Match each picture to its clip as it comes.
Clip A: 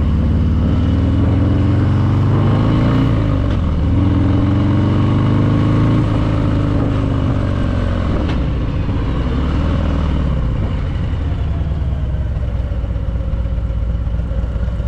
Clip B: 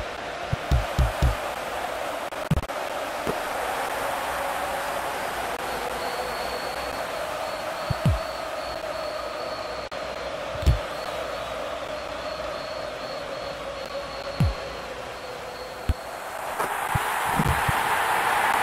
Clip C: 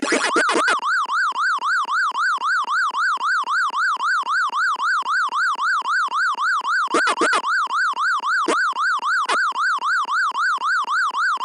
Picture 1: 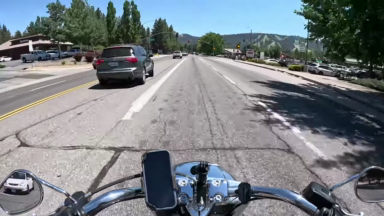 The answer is A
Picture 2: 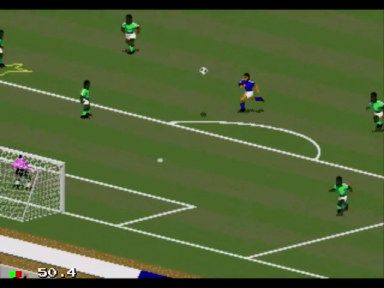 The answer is B